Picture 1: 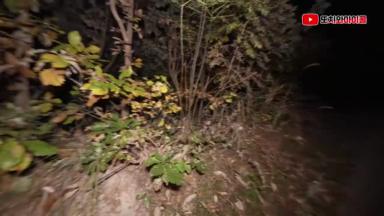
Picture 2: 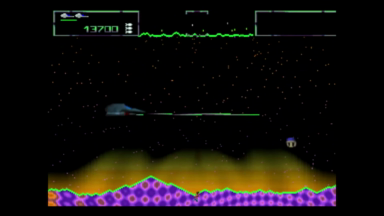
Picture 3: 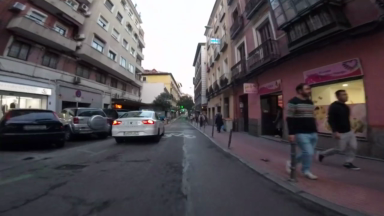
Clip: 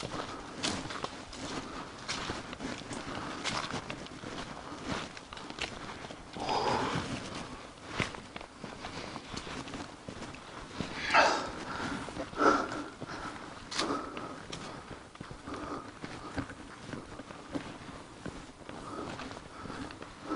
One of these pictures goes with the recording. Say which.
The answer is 1